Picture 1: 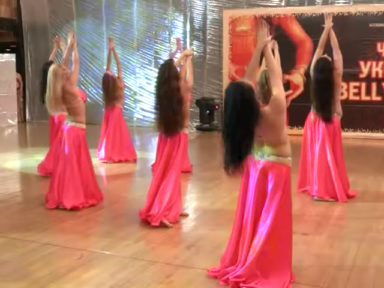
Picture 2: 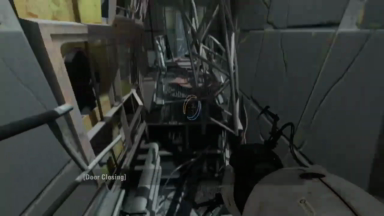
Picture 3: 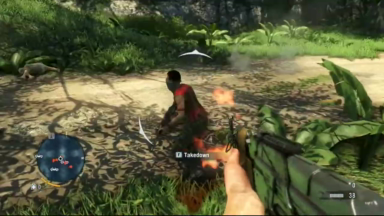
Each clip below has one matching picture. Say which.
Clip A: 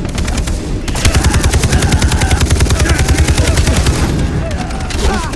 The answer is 3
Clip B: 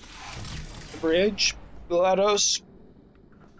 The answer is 2